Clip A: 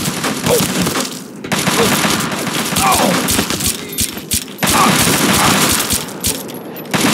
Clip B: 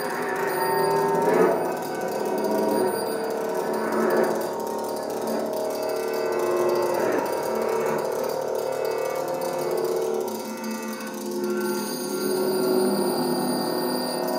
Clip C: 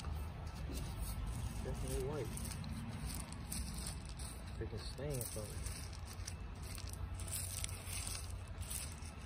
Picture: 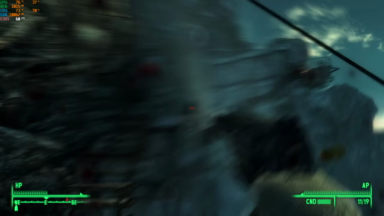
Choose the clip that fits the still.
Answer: A